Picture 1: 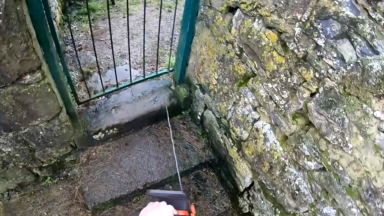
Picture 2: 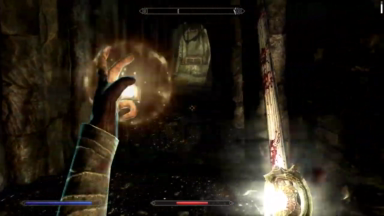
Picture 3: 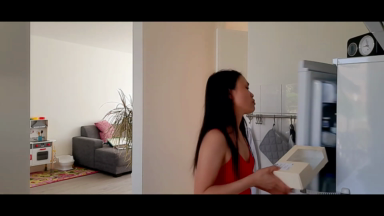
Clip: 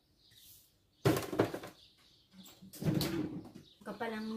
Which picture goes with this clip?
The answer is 3